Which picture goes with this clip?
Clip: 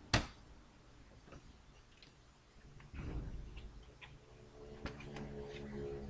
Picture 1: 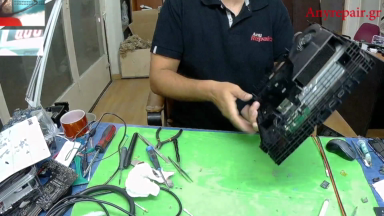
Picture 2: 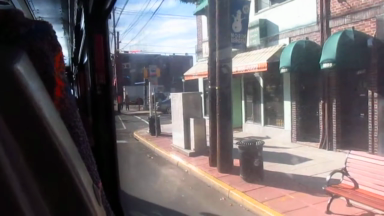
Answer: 1